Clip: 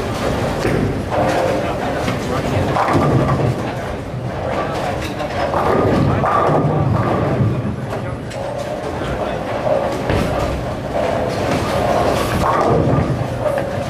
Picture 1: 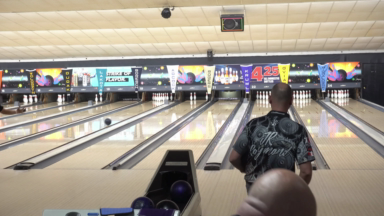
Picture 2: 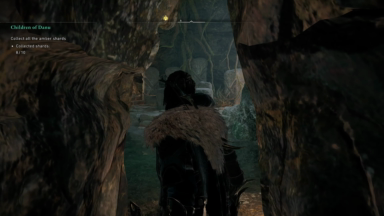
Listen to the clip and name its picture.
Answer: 1